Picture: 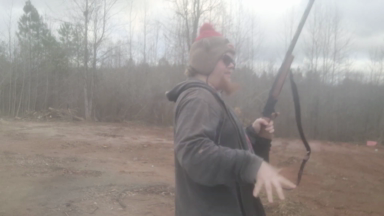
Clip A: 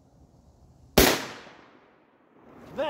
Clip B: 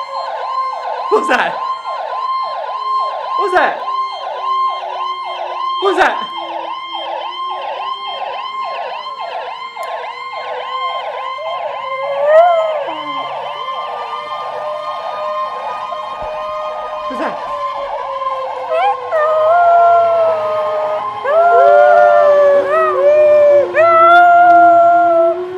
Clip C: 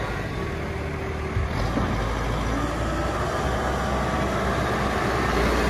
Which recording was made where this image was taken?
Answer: A